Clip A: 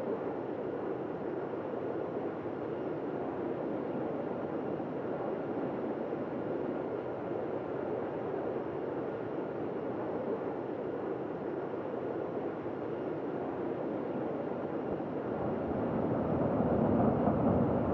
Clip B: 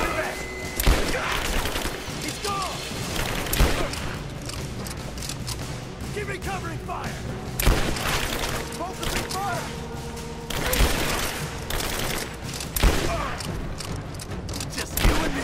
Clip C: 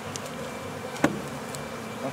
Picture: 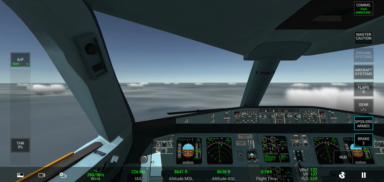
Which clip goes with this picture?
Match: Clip A